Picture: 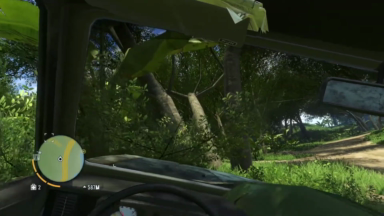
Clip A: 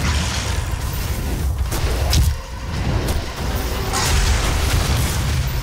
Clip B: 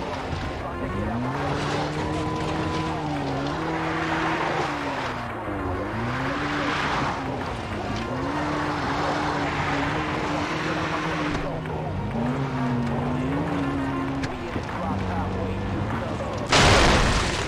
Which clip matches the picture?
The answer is B